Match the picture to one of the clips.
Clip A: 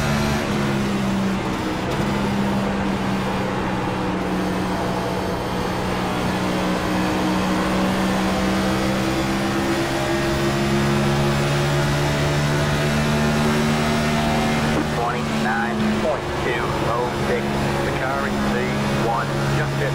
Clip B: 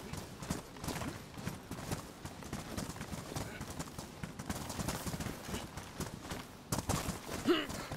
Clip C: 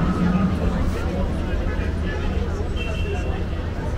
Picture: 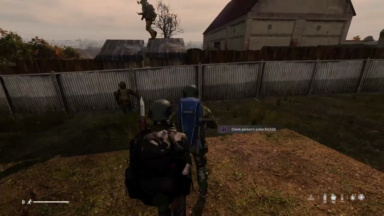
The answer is B